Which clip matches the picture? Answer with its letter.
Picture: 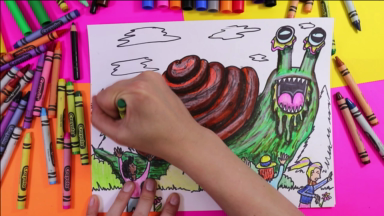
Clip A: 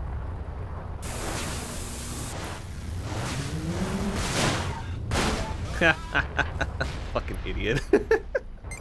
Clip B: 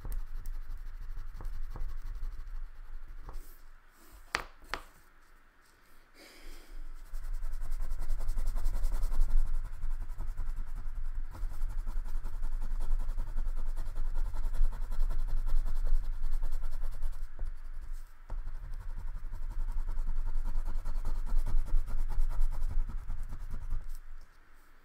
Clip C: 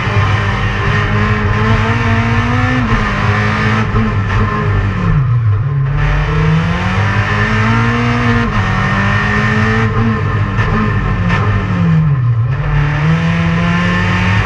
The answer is B